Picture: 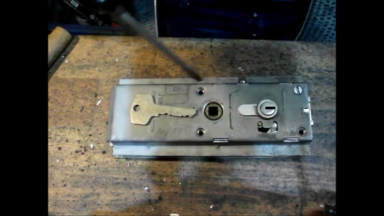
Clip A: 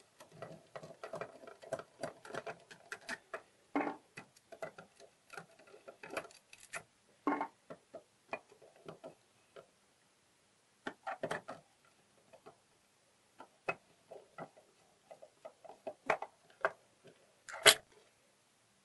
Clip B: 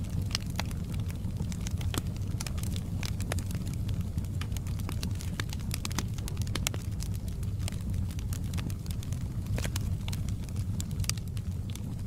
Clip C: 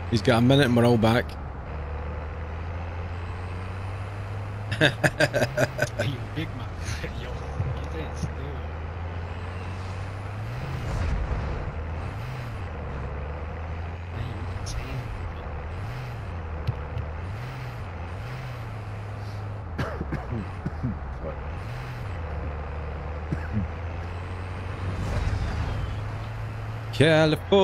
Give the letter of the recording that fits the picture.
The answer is A